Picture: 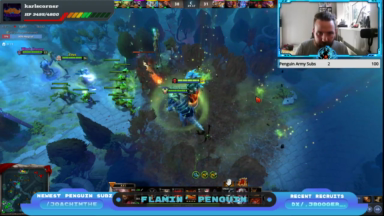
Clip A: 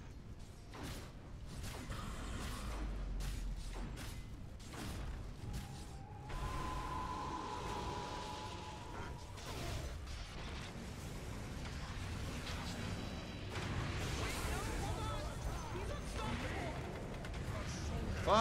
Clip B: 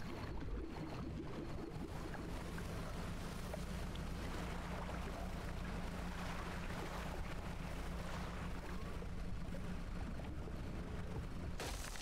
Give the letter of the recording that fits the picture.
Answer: A